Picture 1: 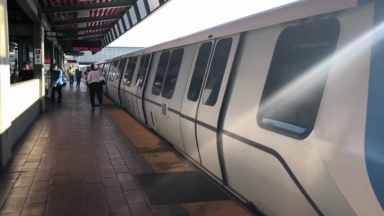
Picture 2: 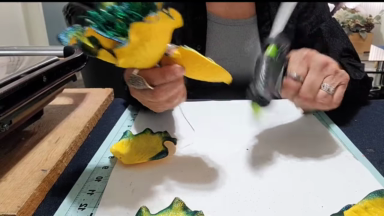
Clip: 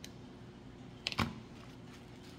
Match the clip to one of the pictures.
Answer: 2